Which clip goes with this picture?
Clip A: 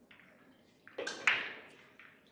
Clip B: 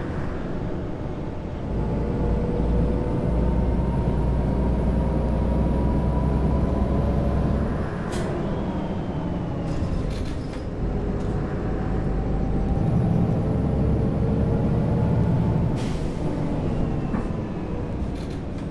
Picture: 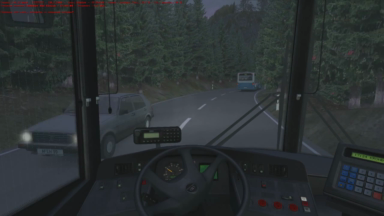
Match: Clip B